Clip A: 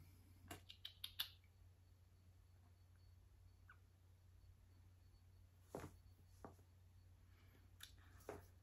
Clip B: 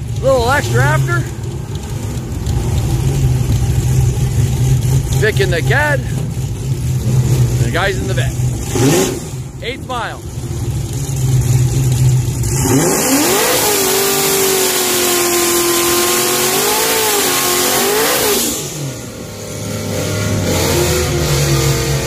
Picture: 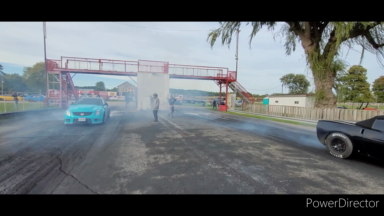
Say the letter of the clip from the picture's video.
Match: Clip B